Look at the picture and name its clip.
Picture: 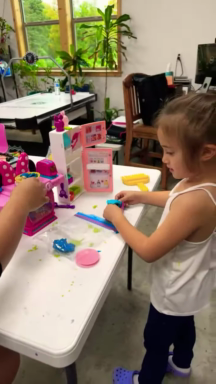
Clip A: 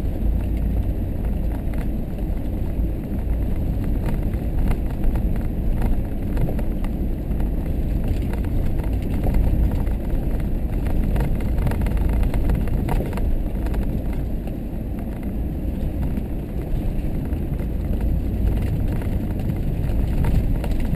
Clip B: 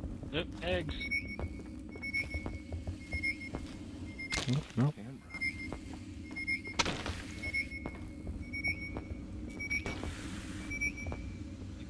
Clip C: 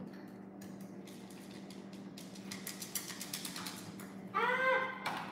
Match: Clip C